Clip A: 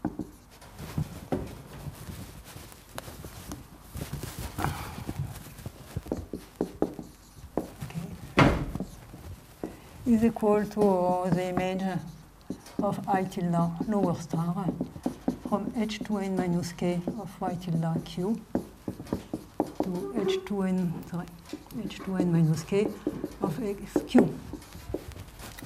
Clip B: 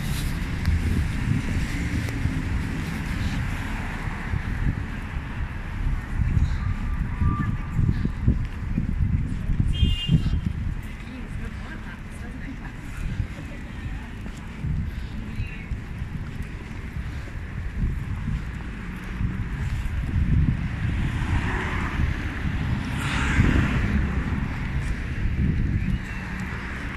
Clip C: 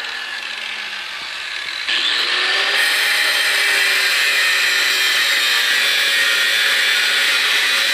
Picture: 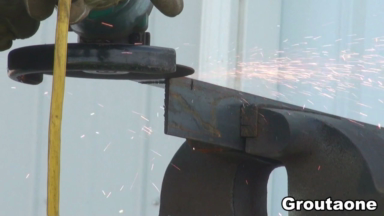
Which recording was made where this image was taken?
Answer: C